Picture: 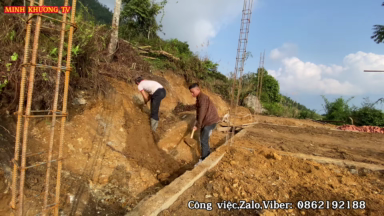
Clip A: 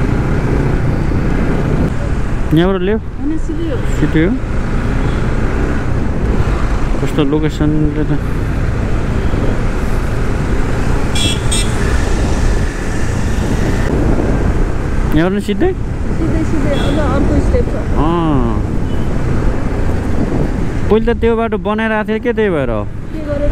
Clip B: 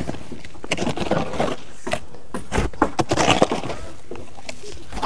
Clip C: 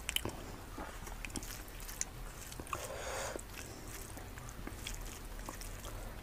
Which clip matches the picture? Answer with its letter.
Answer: B